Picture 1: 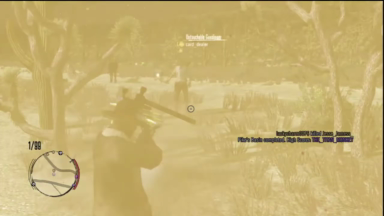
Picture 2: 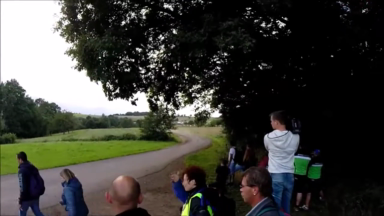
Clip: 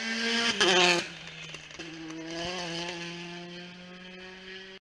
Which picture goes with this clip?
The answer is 2